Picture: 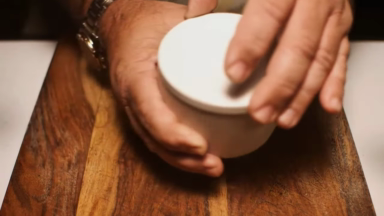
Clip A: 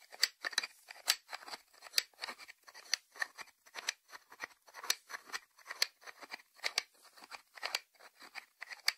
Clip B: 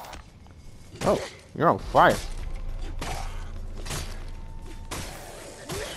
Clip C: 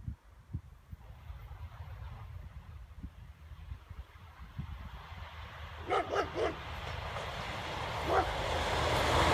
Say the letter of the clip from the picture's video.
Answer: A